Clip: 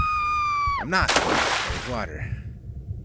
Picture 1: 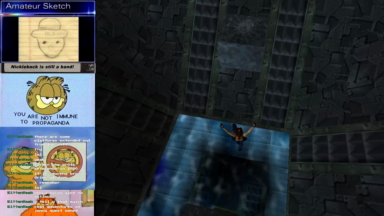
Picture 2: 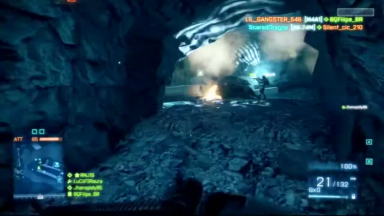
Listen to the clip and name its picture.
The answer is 1